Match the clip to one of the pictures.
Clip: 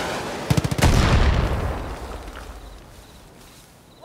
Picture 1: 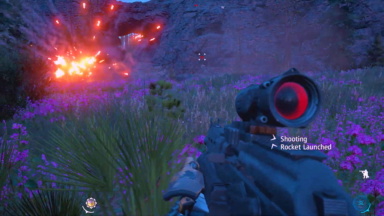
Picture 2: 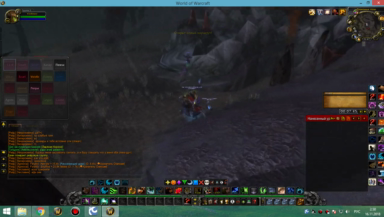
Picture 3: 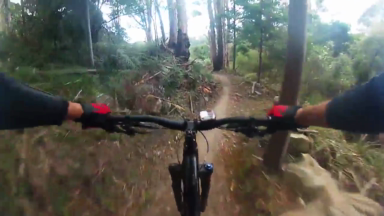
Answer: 1